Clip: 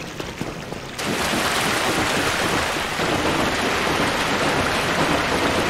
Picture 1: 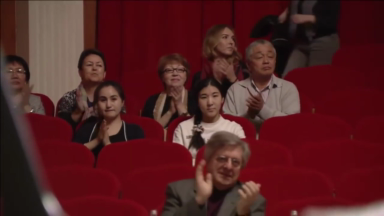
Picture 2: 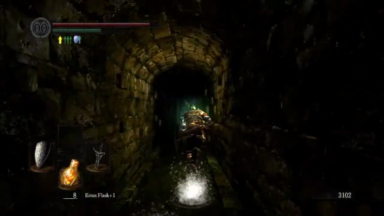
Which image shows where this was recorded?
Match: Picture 2